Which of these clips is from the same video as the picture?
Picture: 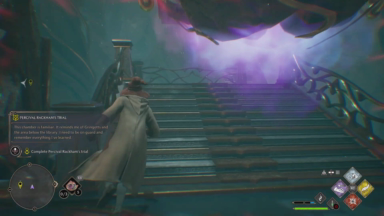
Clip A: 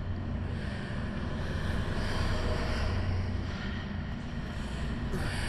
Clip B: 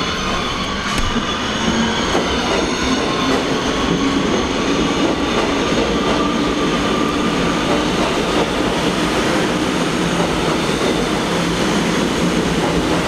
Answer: A